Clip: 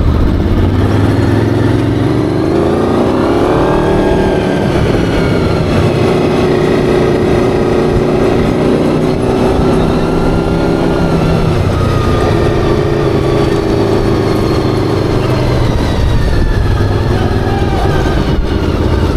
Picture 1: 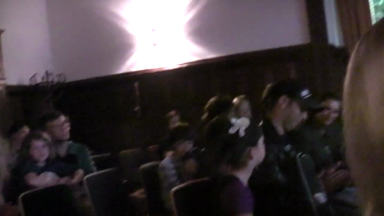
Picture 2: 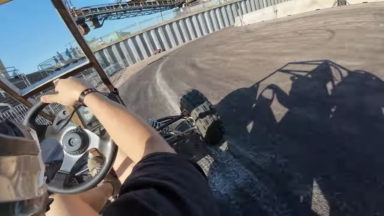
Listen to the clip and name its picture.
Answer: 2